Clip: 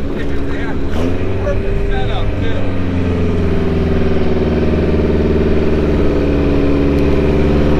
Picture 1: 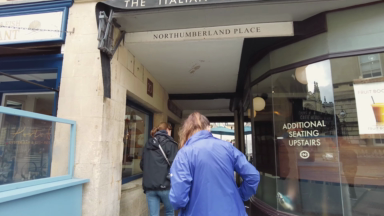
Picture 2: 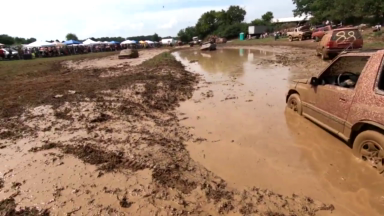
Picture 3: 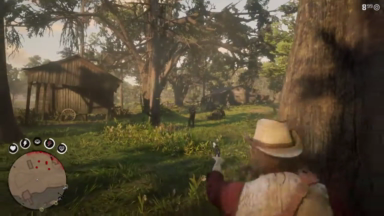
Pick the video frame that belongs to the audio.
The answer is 2